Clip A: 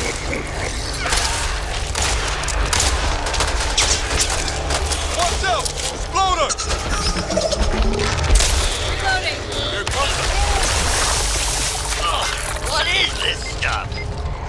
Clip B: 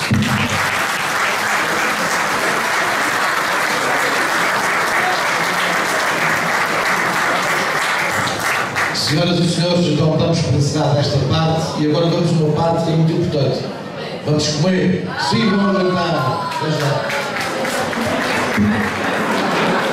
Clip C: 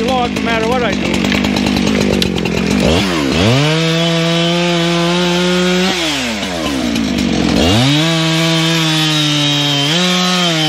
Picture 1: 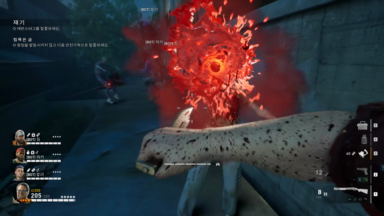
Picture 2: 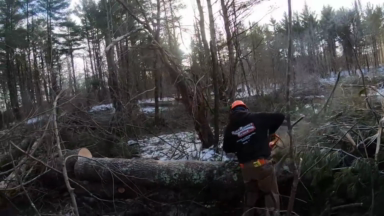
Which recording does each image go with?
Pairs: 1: A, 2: C